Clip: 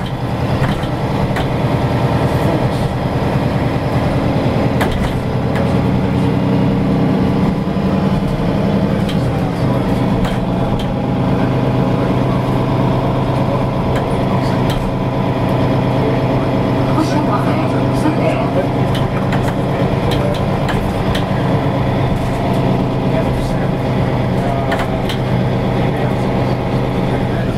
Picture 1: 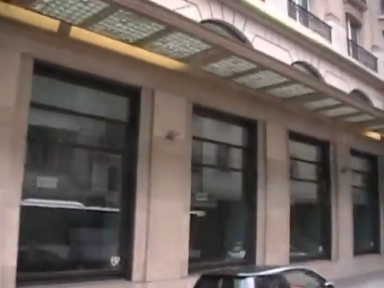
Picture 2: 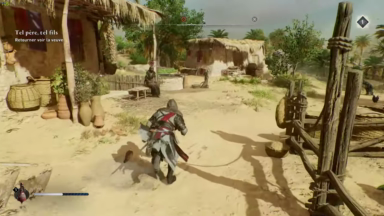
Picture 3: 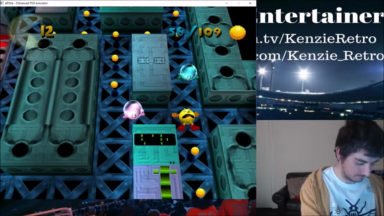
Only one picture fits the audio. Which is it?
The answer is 1